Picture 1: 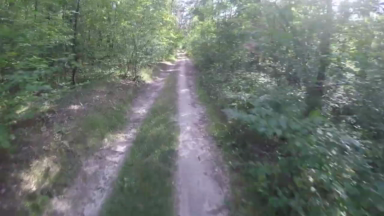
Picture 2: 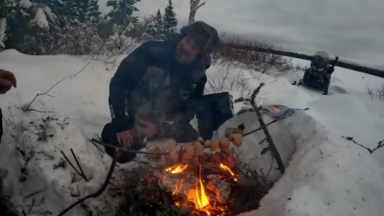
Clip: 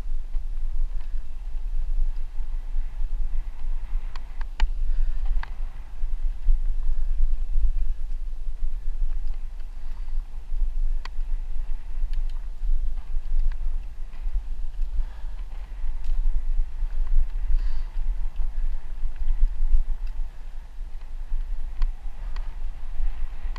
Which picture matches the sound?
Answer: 1